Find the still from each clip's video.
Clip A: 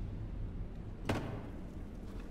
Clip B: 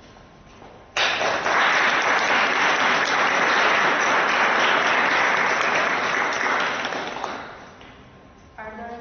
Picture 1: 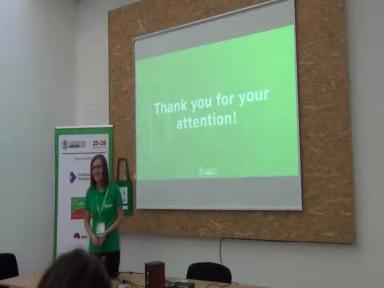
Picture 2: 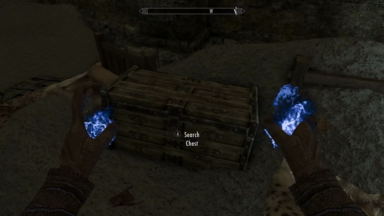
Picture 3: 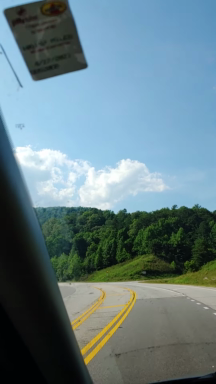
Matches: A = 2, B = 1